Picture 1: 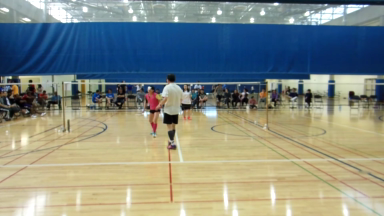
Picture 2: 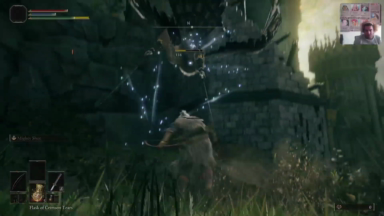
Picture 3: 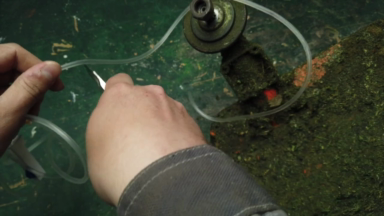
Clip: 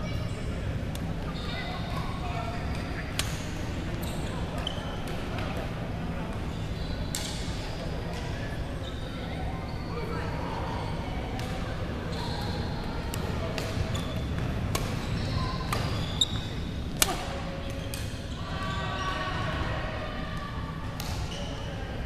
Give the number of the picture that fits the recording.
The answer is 1